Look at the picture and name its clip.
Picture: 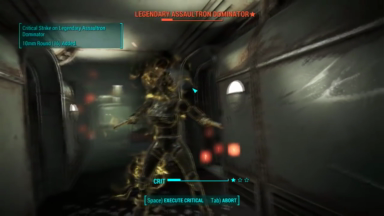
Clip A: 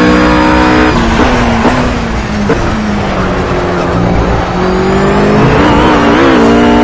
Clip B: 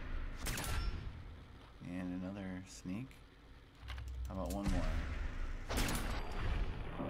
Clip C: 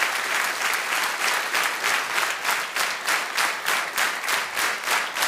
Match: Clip B